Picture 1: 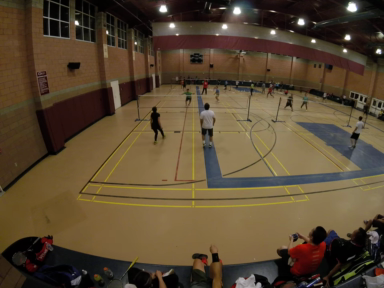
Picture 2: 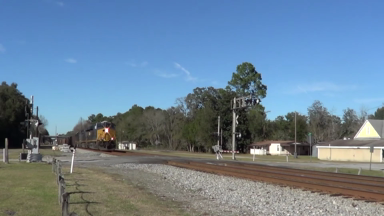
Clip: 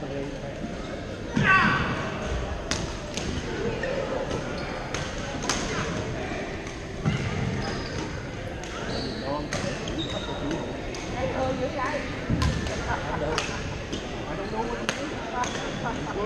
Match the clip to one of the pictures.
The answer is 1